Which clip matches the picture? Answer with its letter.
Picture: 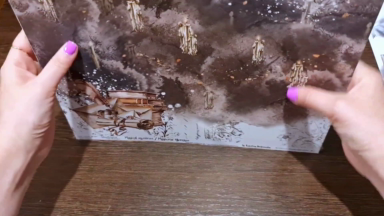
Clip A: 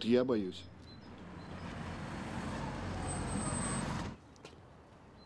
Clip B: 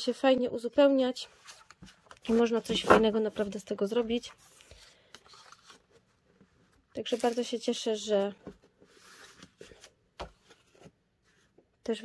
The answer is B